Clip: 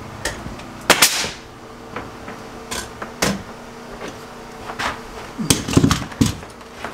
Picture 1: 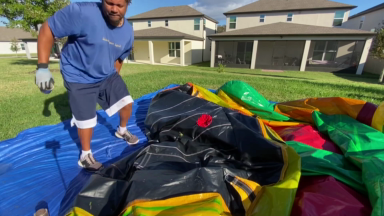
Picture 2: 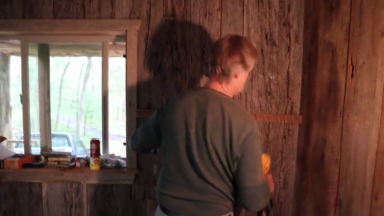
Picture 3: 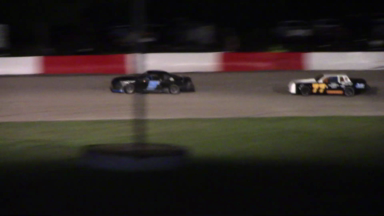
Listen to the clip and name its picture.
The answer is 2